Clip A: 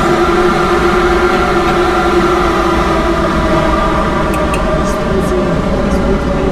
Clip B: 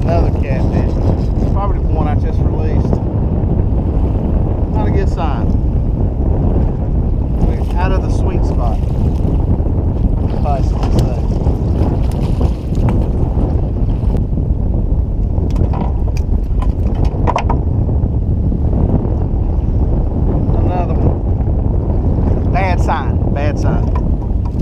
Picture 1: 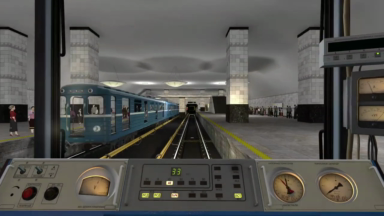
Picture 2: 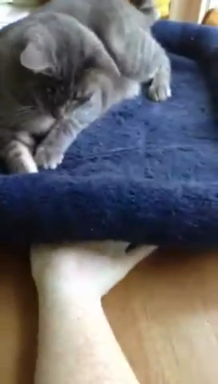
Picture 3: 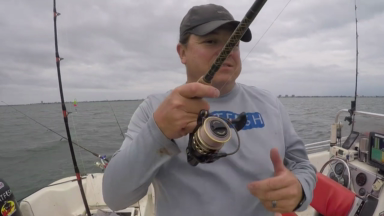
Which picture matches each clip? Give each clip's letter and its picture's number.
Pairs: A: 1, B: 3